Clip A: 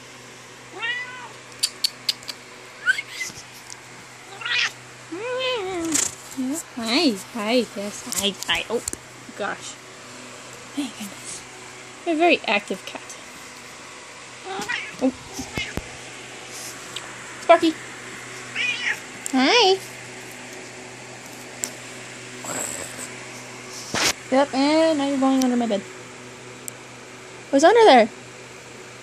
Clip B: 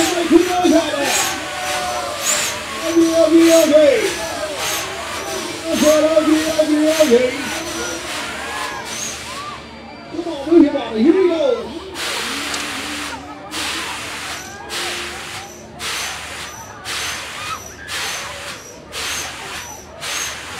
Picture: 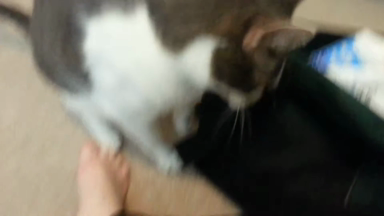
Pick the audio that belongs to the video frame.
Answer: A